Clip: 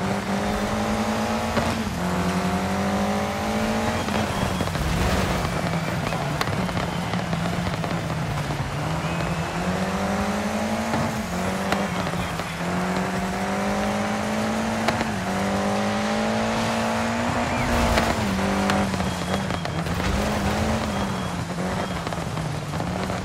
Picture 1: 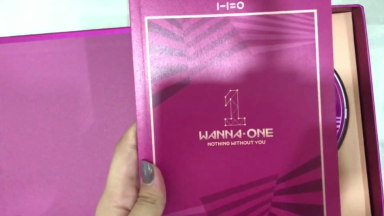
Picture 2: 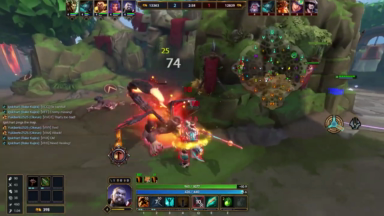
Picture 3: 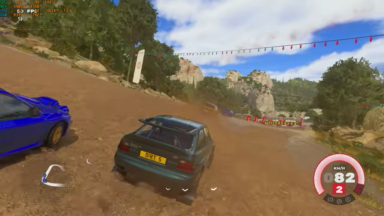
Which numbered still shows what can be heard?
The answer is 3